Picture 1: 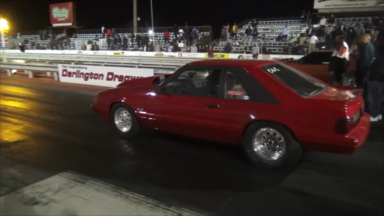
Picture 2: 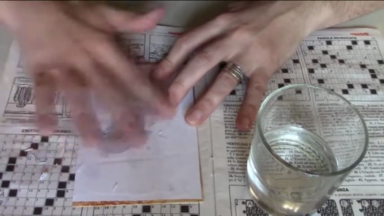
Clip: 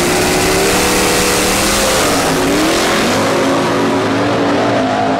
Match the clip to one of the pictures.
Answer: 1